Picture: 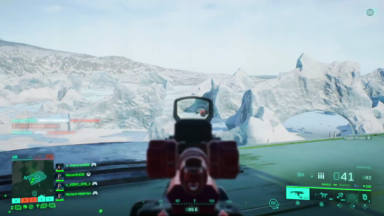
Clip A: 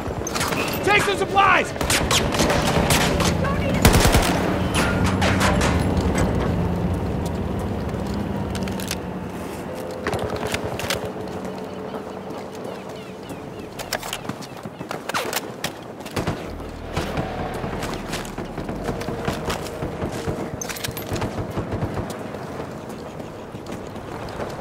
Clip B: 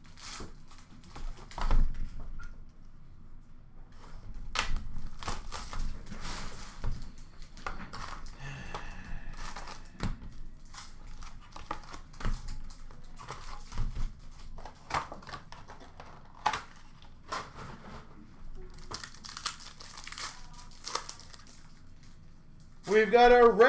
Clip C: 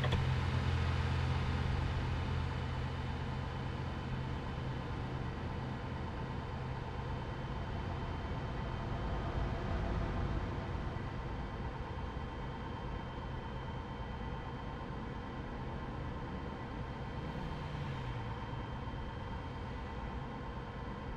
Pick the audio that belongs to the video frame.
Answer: A